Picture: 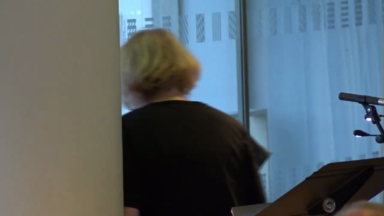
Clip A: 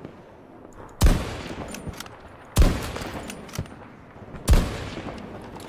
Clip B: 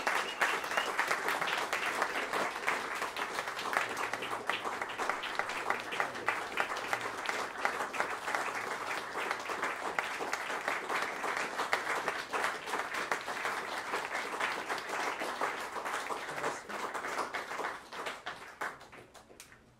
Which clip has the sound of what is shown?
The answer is B